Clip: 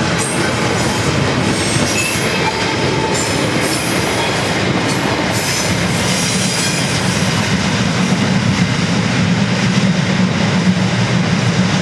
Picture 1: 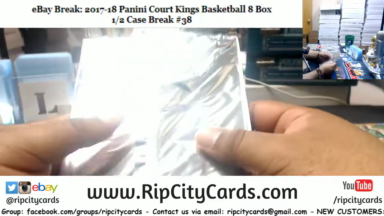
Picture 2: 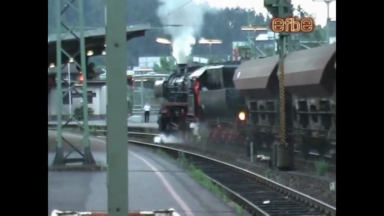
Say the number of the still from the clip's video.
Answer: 2